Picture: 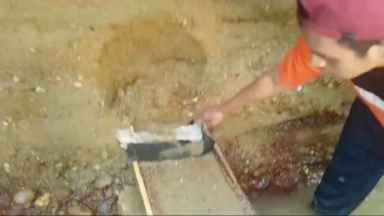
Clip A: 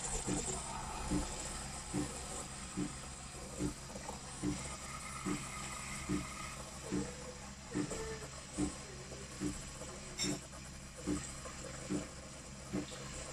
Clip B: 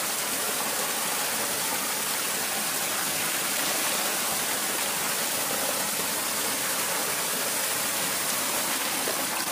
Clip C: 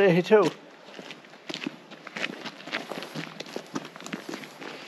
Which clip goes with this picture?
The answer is B